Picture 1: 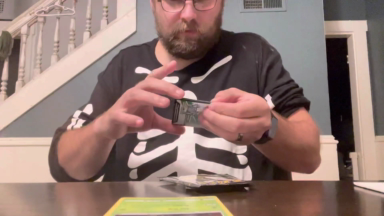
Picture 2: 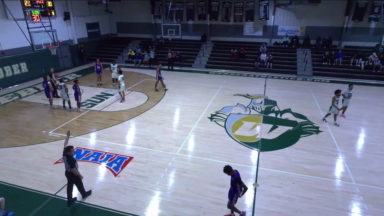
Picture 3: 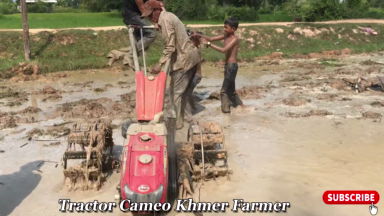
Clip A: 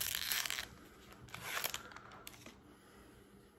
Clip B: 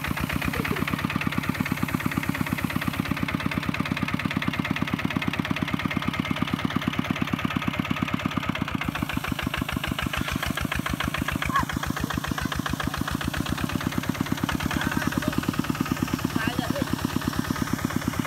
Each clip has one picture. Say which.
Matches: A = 1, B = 3